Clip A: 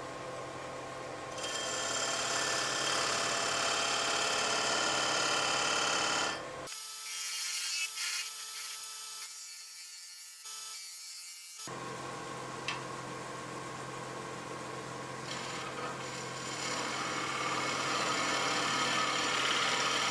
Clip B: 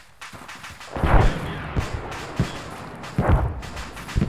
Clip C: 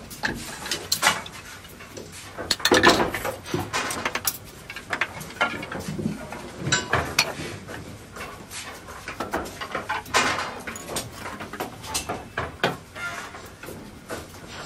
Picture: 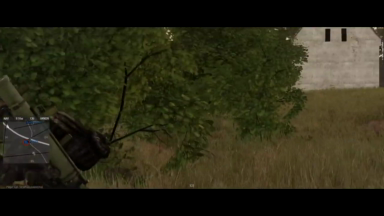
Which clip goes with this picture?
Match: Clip B